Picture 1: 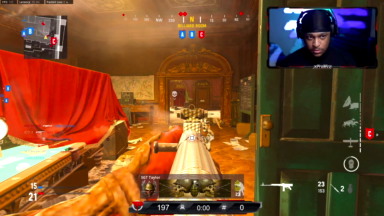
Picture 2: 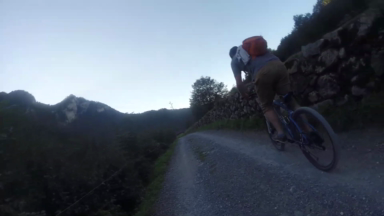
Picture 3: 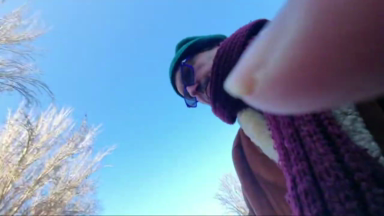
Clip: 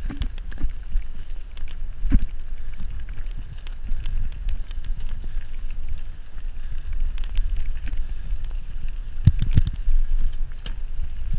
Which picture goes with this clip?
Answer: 2